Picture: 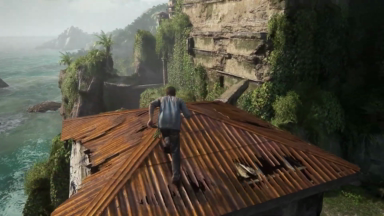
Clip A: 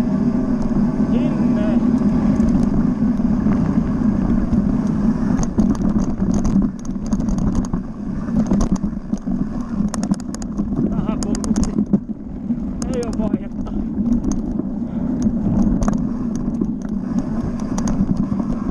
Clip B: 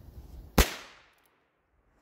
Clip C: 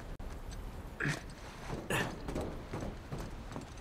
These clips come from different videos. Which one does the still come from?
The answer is C